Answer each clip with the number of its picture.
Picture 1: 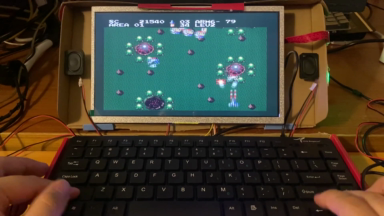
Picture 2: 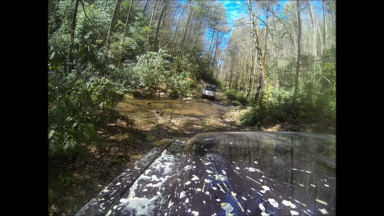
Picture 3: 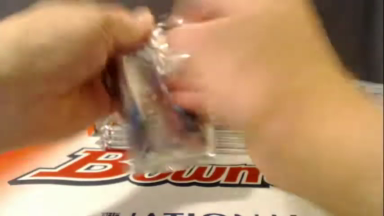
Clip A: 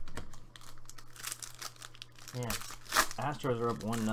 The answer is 3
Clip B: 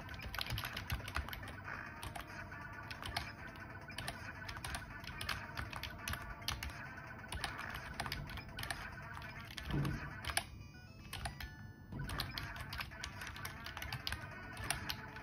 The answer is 1